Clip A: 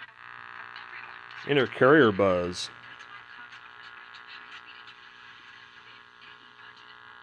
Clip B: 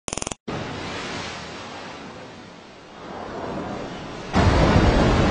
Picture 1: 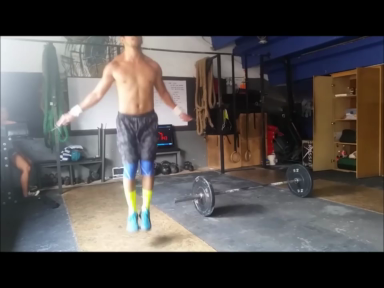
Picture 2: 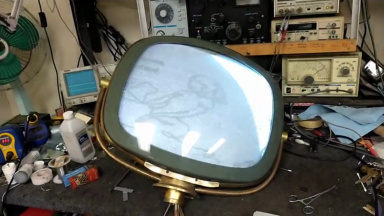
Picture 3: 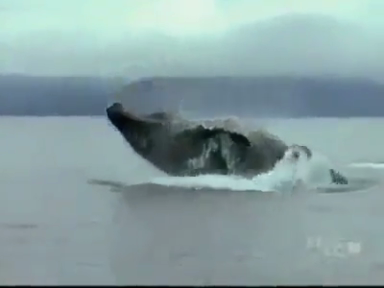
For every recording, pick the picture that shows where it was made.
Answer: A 2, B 3